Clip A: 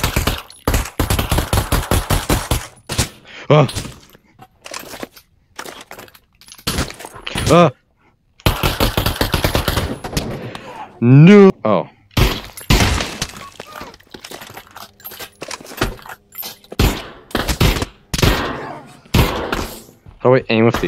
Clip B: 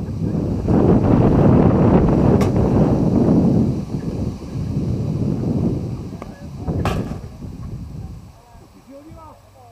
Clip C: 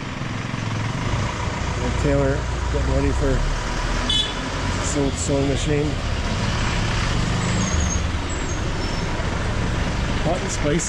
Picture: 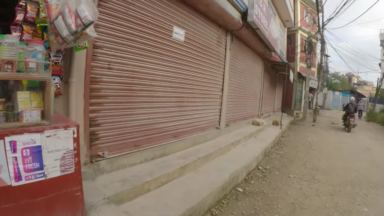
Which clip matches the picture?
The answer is C